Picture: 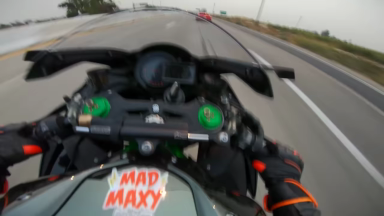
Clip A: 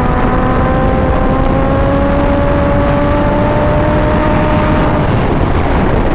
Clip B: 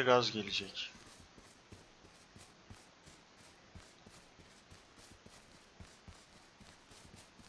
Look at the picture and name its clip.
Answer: A